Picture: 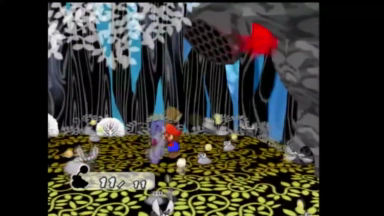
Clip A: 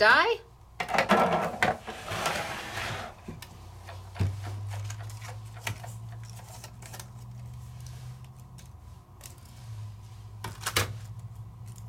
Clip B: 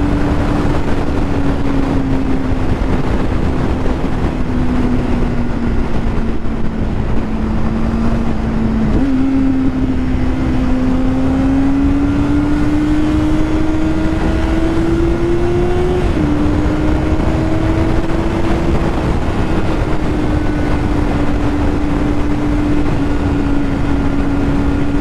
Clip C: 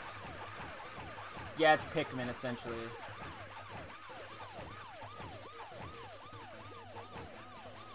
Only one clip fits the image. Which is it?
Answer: C